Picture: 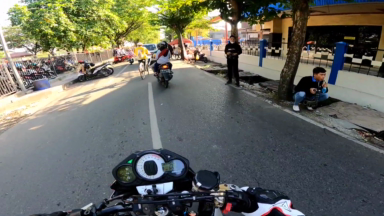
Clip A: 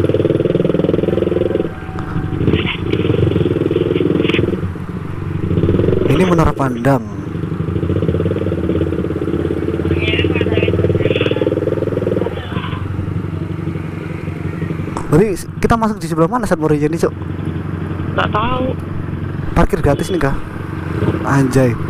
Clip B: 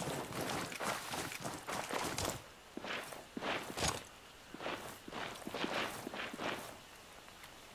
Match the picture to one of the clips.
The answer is A